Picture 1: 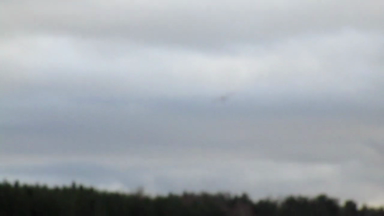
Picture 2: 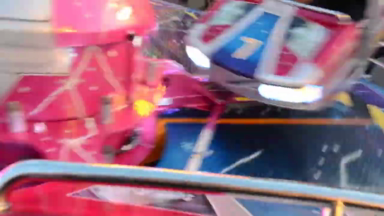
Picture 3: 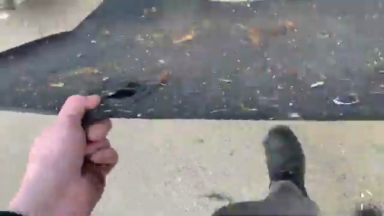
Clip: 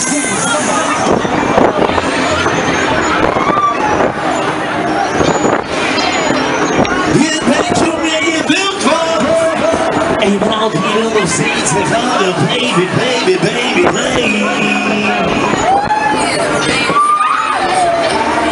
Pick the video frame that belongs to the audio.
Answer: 2